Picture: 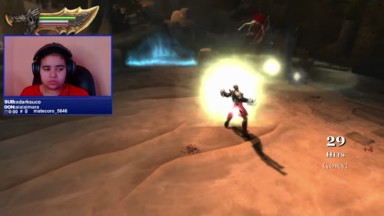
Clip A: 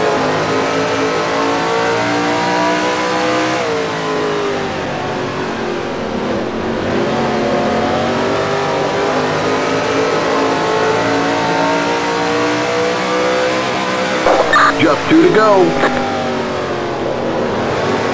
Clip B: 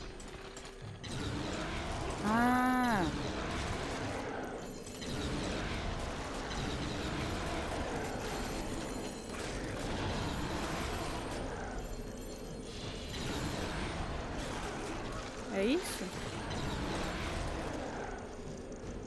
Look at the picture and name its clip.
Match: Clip B